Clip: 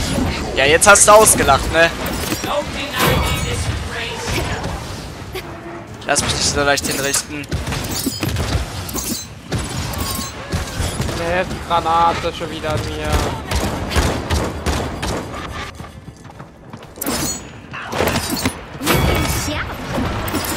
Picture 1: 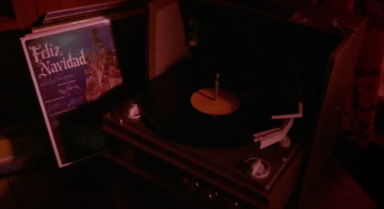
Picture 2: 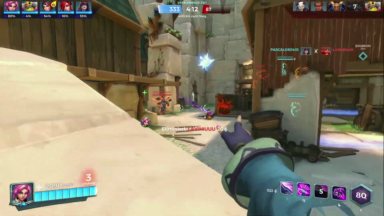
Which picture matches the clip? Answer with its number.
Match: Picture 2